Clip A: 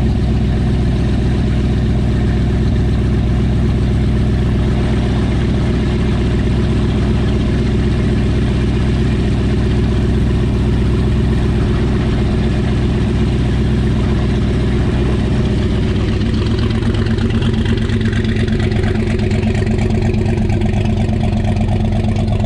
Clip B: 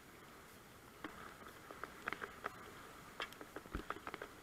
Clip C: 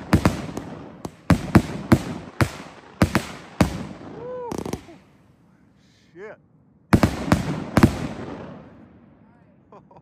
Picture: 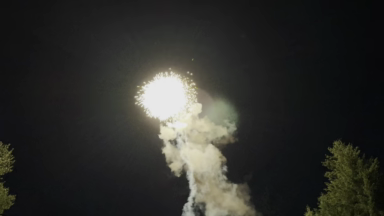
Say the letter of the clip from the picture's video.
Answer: C